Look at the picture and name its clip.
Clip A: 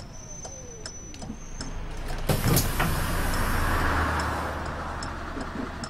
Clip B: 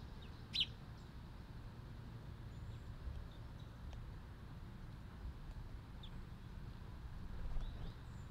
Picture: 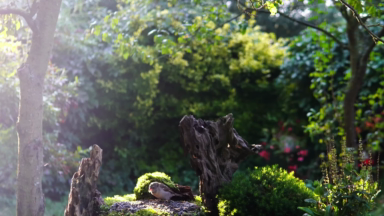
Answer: B